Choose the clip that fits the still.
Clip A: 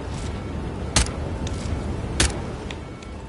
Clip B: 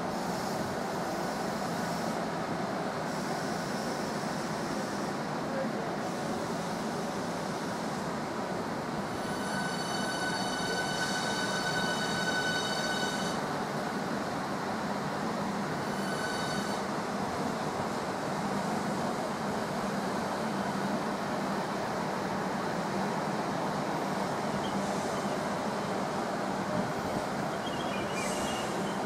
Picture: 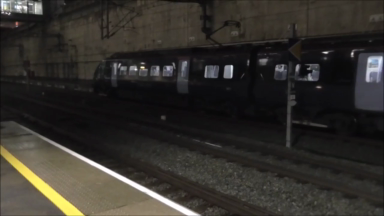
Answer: B